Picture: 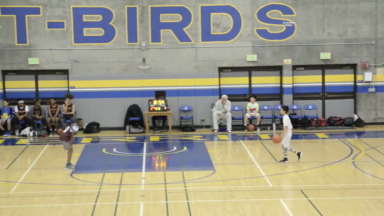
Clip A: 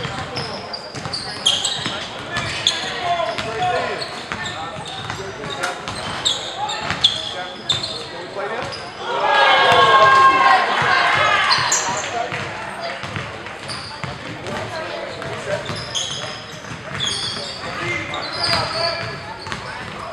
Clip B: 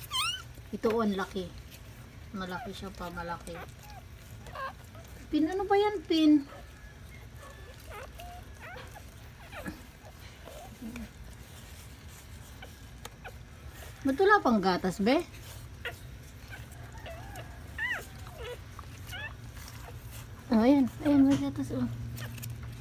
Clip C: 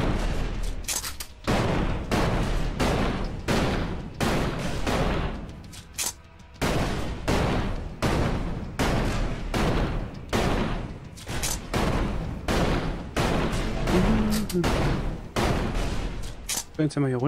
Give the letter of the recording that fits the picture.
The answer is A